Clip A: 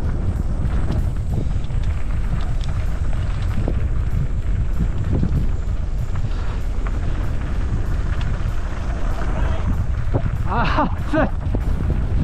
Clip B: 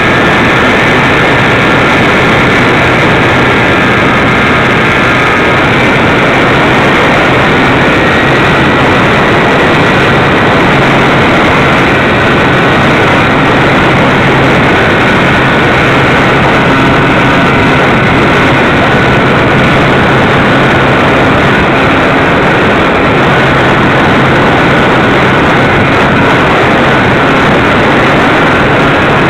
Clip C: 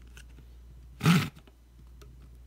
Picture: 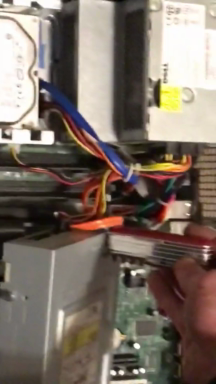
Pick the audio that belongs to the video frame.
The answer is C